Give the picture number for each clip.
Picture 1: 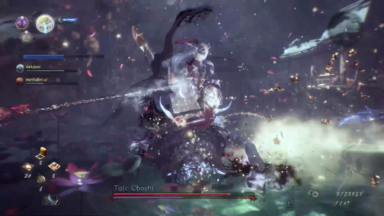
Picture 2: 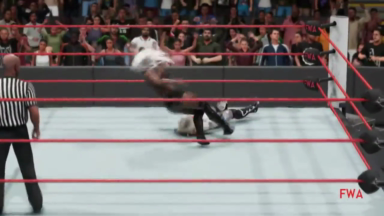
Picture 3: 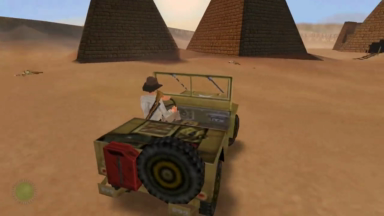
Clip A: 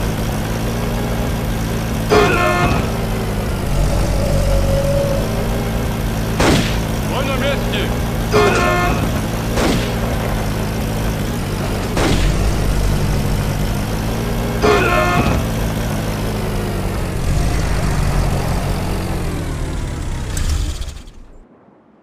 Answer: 3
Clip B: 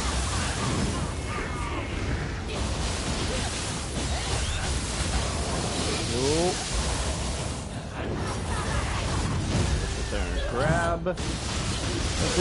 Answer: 1